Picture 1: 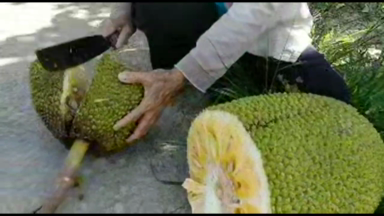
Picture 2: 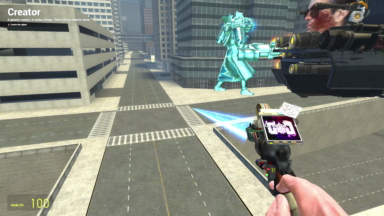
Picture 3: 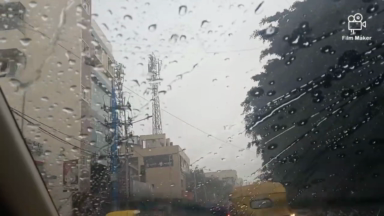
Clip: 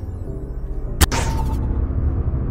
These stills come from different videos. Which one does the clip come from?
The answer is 2